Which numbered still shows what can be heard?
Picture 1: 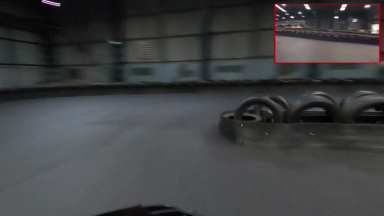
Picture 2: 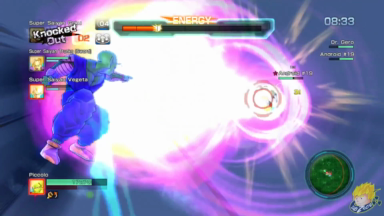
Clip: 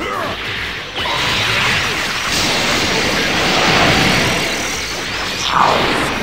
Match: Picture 2